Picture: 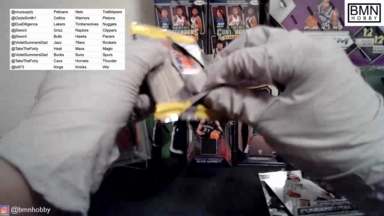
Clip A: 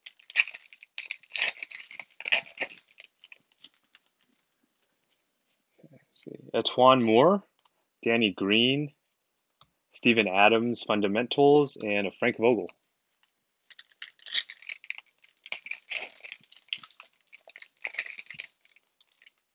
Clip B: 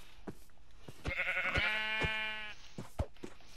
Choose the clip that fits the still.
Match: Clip A